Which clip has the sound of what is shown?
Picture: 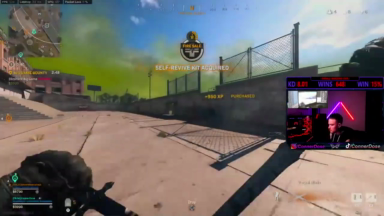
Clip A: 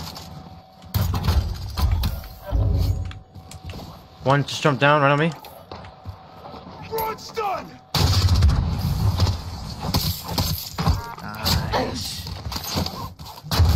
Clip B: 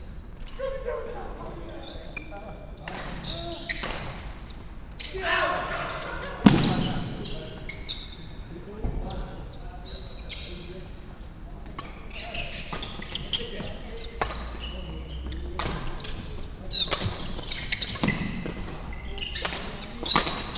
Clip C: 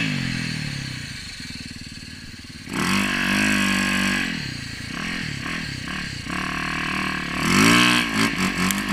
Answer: A